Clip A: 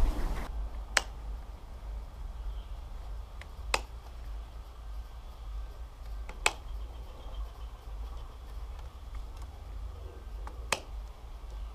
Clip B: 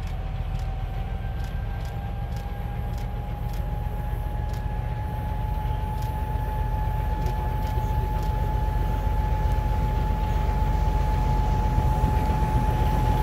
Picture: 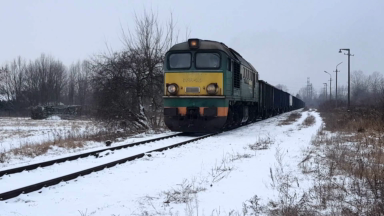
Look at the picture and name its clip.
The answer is B